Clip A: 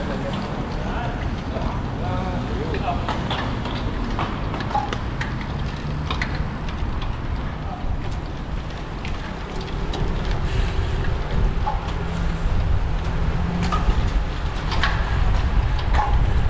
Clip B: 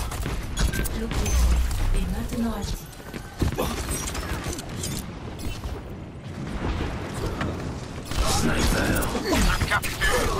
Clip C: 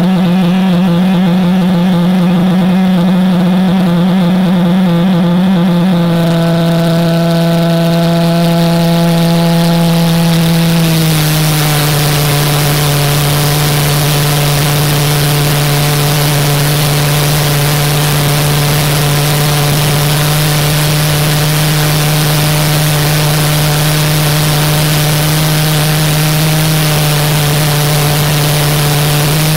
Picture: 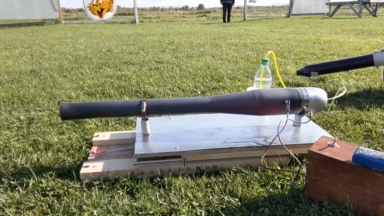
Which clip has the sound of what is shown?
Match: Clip C